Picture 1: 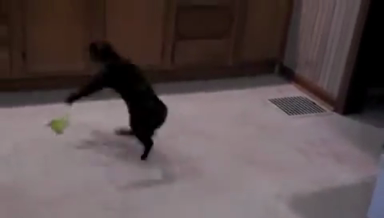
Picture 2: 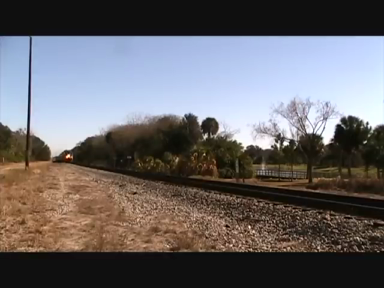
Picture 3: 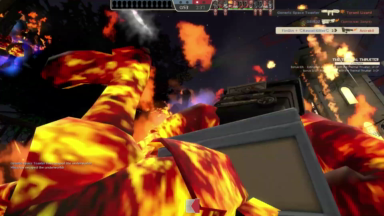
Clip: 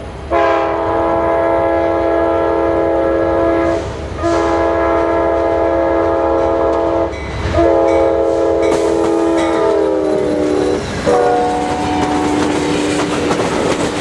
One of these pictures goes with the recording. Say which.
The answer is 2